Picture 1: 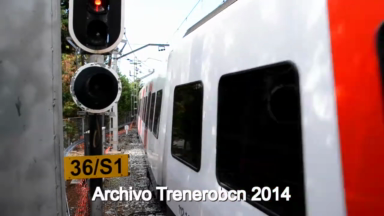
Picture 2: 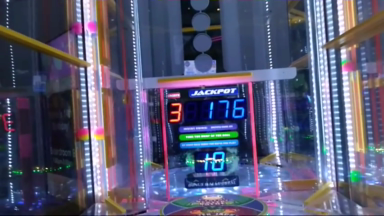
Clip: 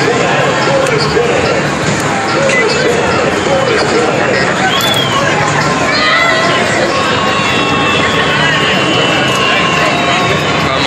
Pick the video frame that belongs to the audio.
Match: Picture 2